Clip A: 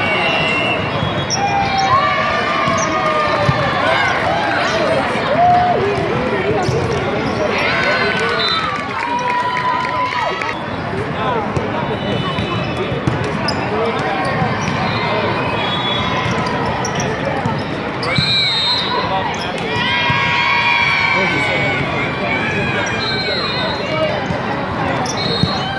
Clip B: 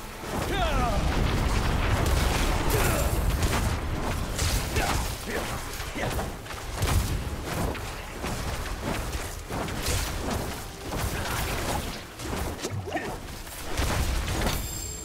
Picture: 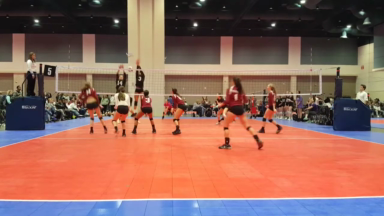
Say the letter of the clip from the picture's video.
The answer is A